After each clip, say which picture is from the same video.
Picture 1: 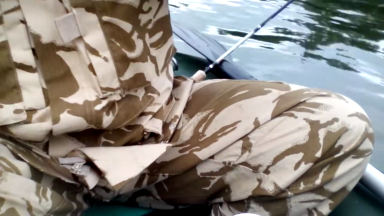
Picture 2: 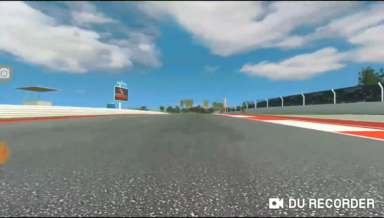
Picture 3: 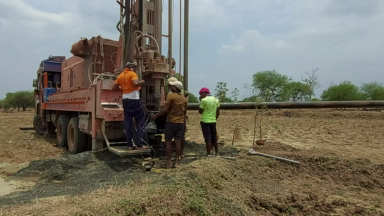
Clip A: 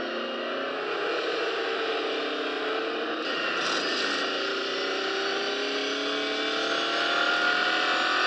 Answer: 2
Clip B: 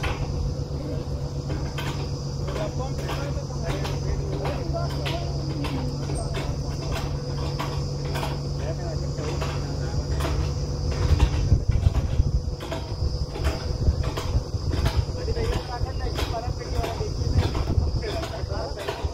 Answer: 3